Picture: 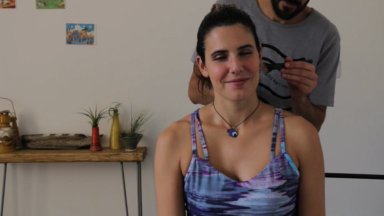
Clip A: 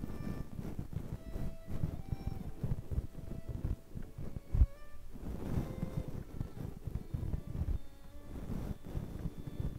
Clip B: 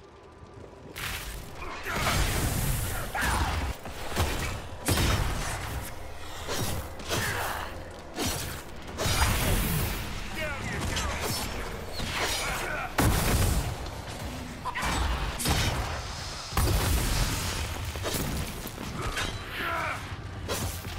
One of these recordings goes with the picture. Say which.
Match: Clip A